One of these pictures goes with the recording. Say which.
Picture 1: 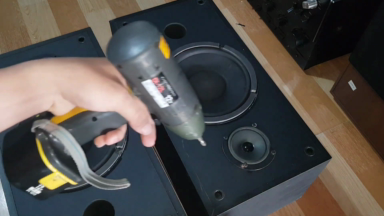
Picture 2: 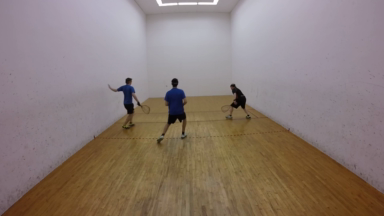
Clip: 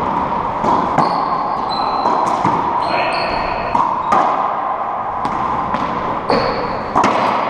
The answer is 2